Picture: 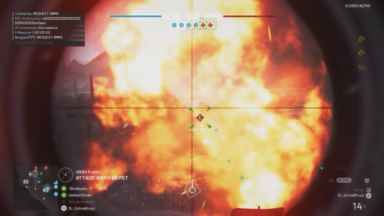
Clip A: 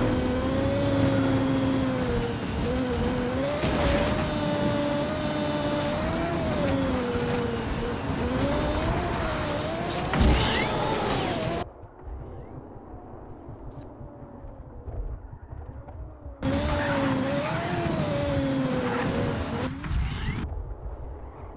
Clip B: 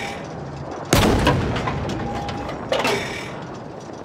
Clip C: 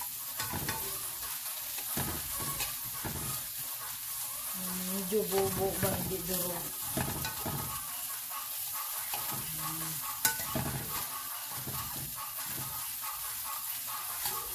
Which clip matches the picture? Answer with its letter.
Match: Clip B